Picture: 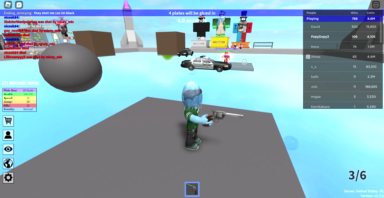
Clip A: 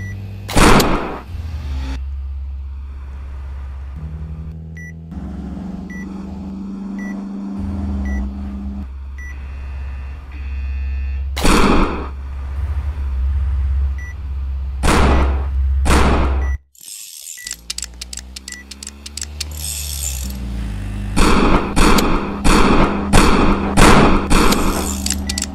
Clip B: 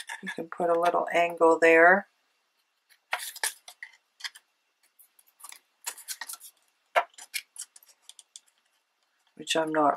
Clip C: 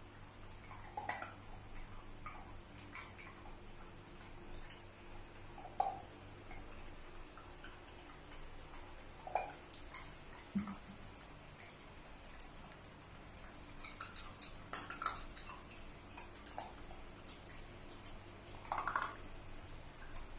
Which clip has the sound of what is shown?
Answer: A